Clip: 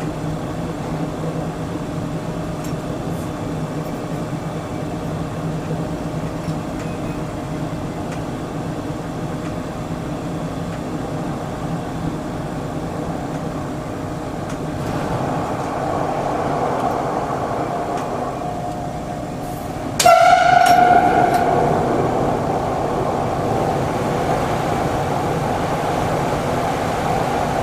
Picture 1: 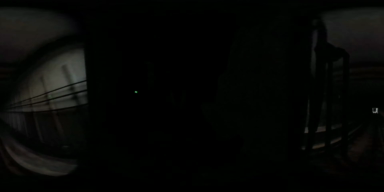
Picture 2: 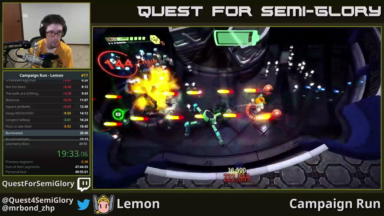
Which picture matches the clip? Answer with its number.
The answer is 1